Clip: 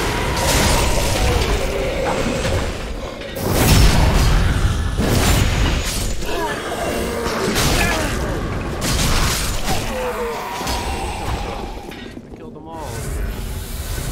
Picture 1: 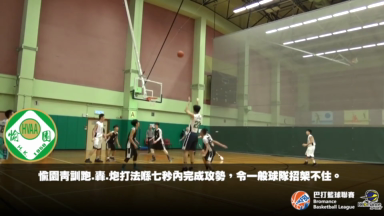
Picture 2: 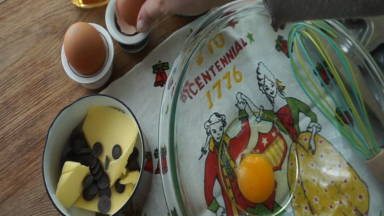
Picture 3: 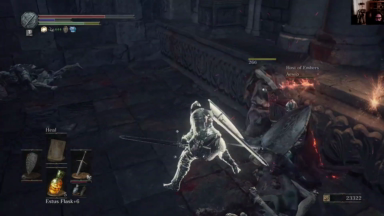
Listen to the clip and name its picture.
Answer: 3